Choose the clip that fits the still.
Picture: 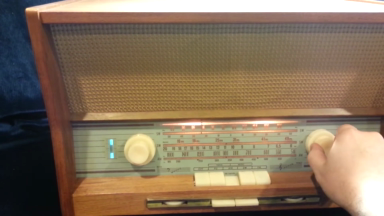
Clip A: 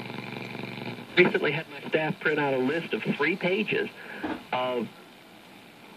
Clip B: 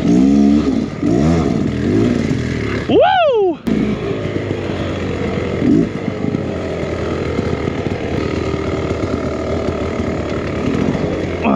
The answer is A